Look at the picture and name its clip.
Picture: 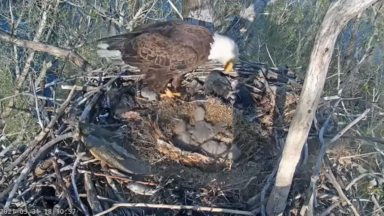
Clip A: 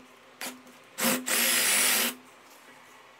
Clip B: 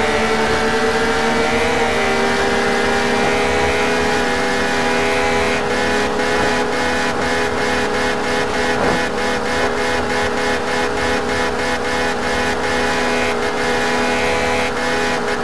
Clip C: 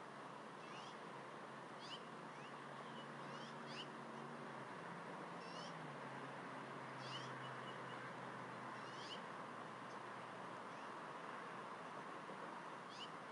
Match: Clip C